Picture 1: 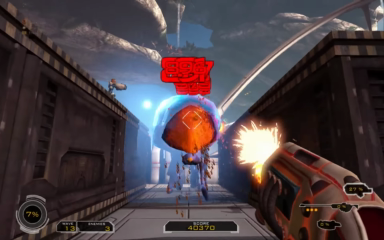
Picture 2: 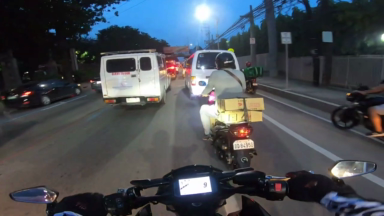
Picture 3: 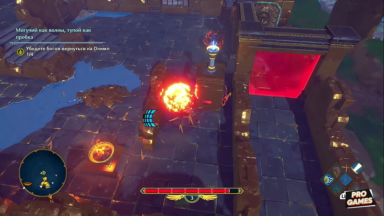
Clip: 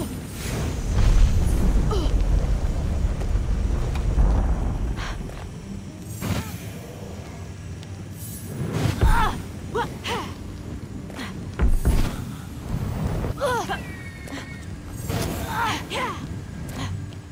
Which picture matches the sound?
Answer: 3